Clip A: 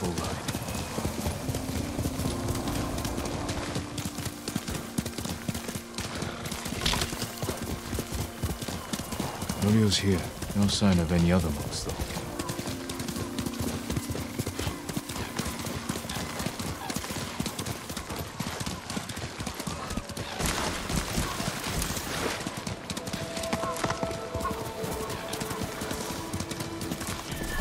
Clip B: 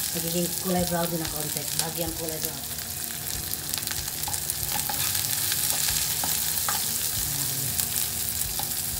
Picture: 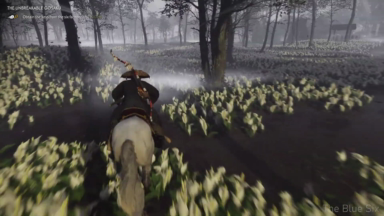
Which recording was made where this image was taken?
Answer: A